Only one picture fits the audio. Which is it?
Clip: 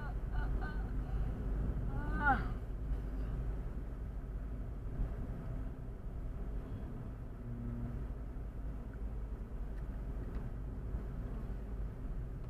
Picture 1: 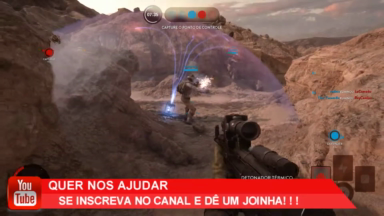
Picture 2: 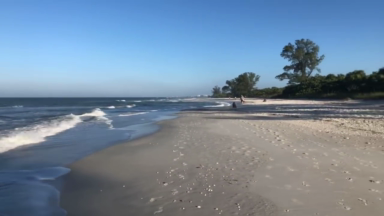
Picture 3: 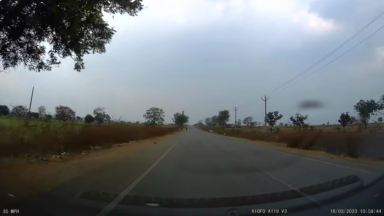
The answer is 3